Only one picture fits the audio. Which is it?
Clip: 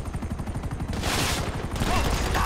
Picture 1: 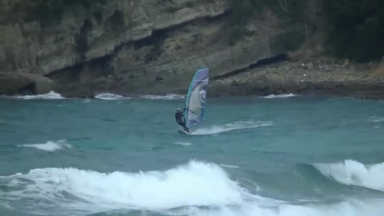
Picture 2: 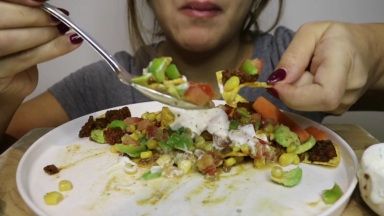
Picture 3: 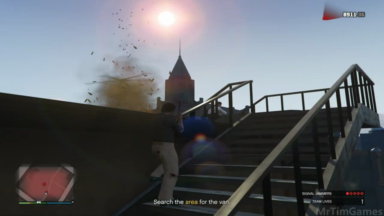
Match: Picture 3